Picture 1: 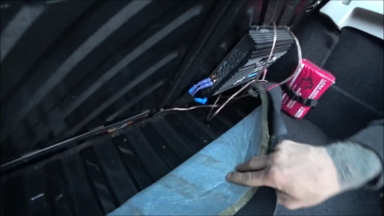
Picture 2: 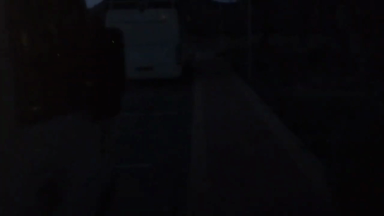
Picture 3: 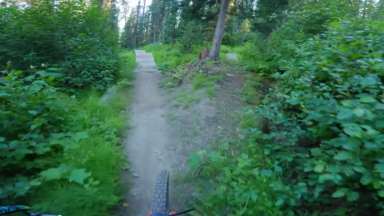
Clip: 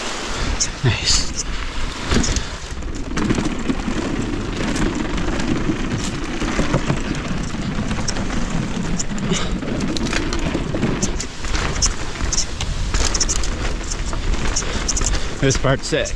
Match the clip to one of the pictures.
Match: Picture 3